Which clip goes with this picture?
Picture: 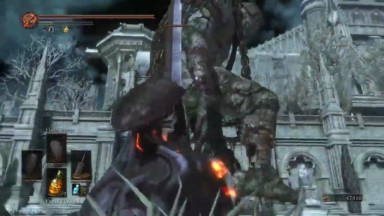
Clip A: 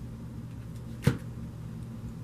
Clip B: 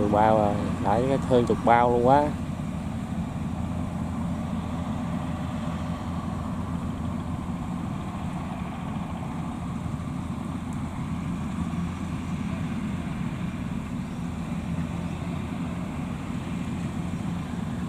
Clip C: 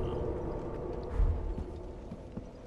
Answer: C